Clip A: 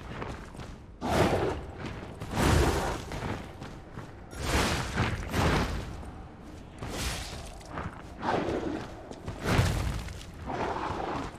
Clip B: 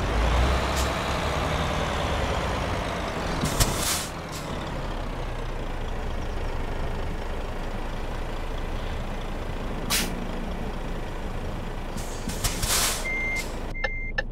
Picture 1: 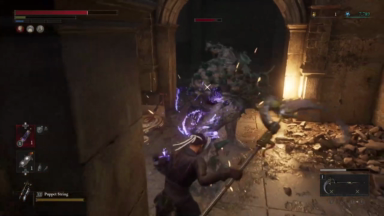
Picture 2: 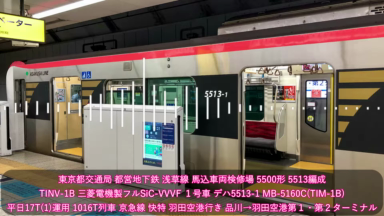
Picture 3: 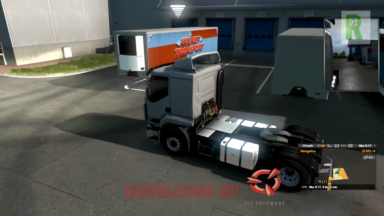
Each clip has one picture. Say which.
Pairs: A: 1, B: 3